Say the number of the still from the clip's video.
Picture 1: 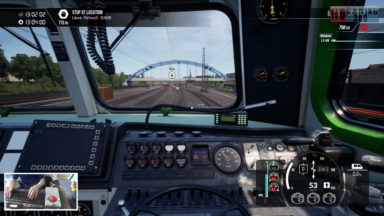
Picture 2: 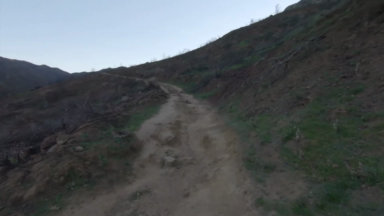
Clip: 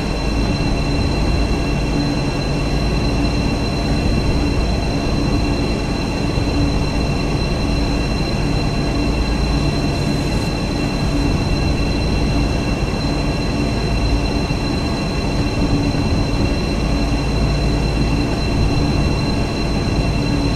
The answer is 1